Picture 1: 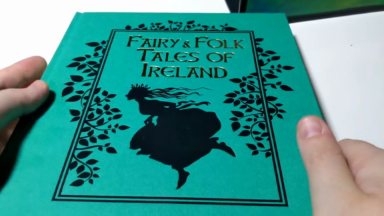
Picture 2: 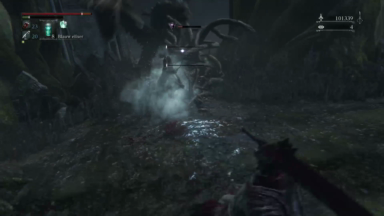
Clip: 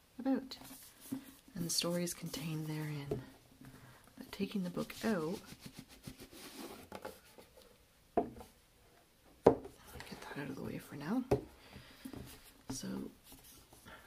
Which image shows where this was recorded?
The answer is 1